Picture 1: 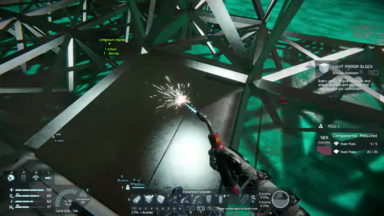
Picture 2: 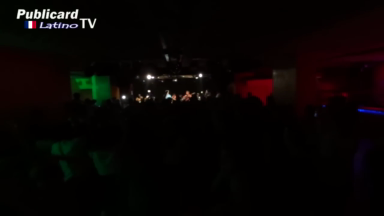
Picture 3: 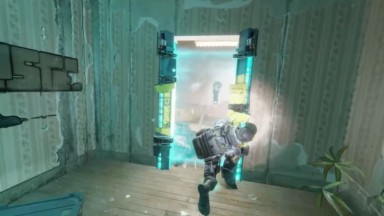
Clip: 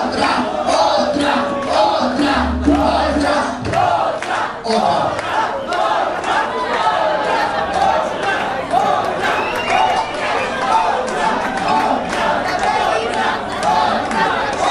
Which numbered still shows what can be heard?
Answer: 2